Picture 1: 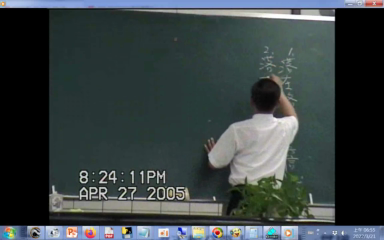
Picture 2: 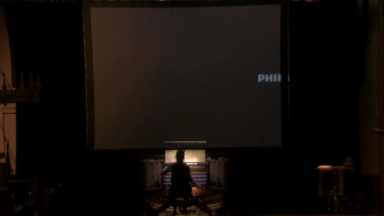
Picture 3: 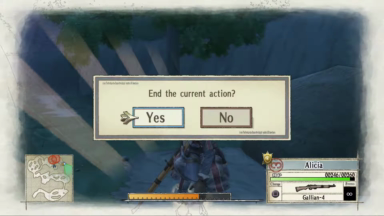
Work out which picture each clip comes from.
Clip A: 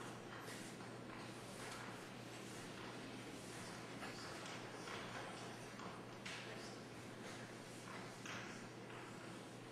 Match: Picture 1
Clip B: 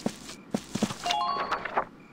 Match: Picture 3